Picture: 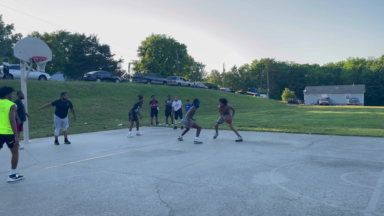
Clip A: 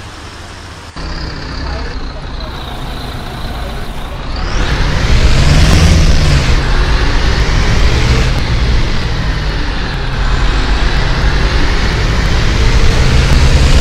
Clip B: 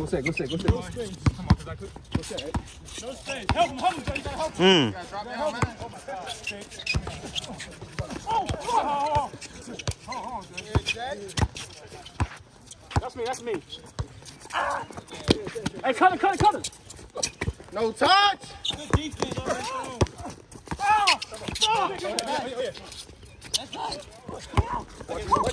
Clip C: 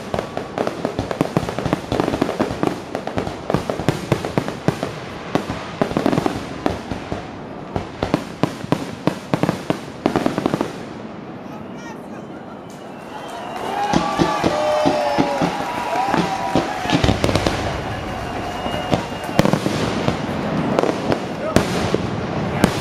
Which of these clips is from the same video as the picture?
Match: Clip B